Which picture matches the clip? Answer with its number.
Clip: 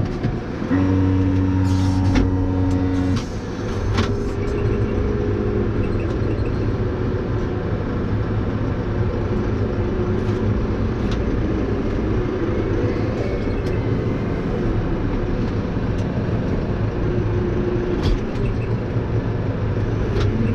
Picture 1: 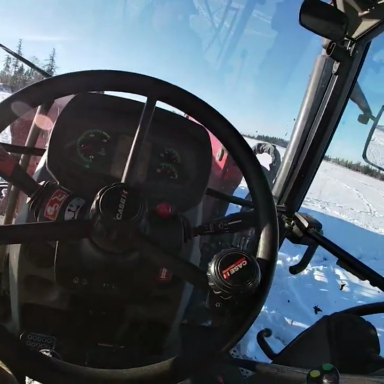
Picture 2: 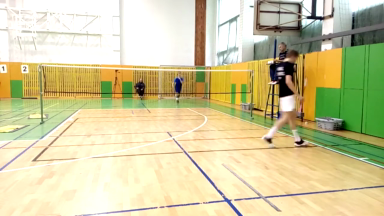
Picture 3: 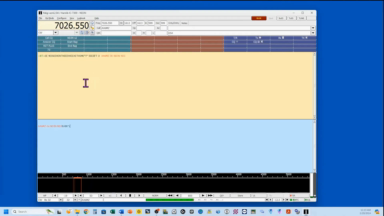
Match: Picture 1